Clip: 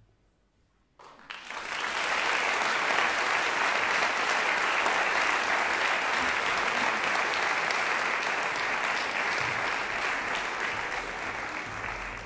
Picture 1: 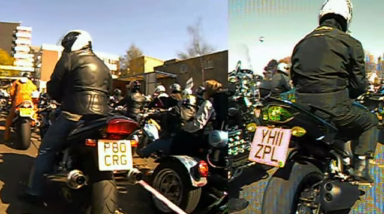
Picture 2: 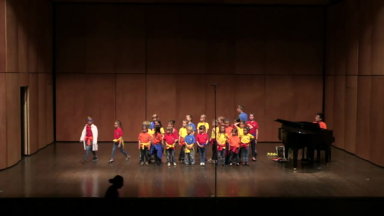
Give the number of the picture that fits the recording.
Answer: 2